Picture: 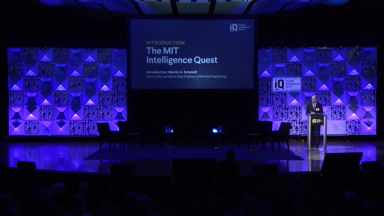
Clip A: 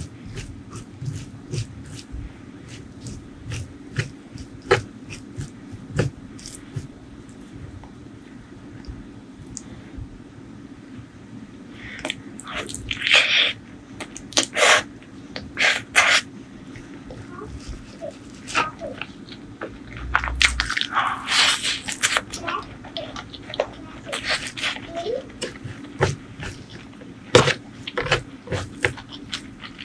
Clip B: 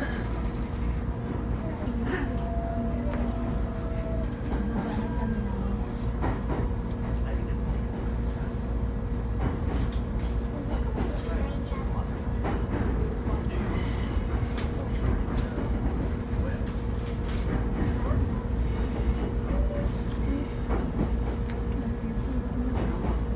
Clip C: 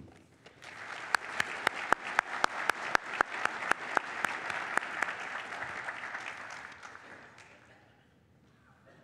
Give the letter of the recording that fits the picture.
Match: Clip C